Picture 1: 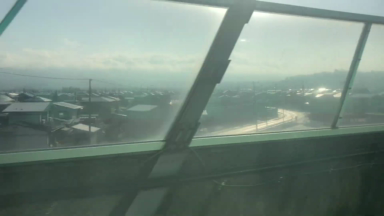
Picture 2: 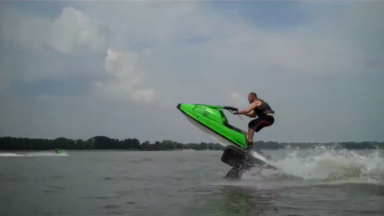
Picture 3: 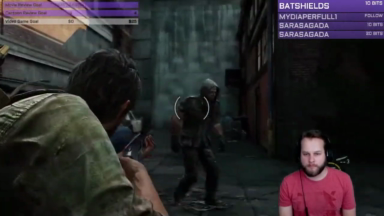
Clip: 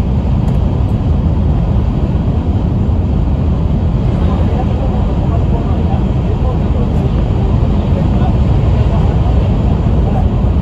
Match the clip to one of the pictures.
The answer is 1